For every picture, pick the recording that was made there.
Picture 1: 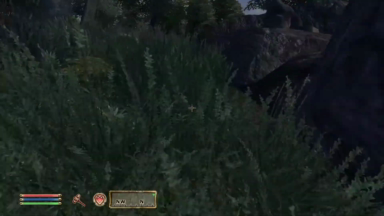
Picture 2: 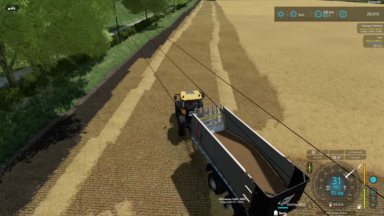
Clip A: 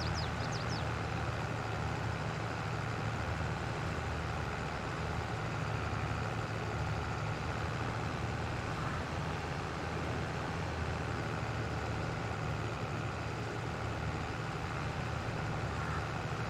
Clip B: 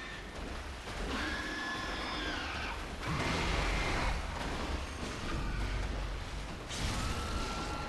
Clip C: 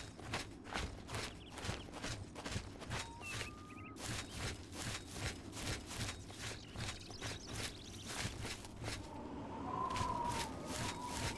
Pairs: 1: C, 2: A